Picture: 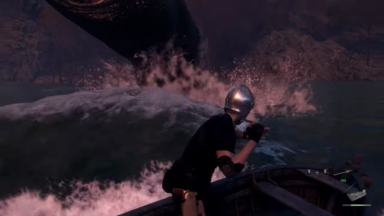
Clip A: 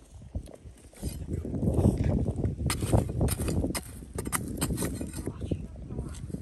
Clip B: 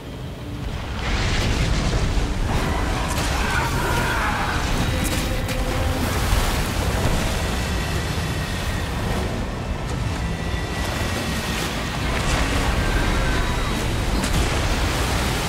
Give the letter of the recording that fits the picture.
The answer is B